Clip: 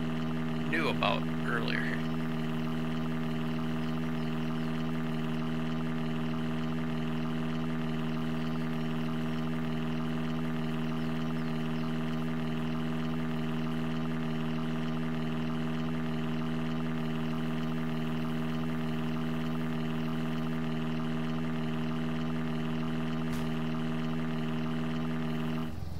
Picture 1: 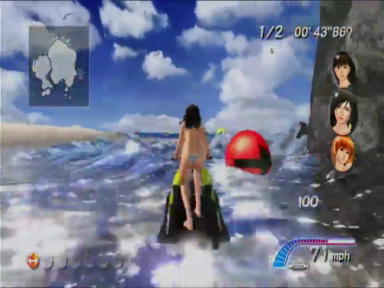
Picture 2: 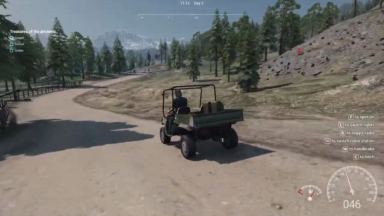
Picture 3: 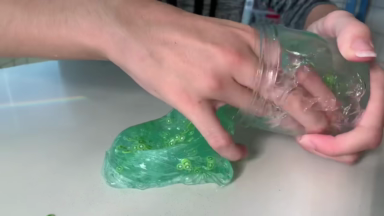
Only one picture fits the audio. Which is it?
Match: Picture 2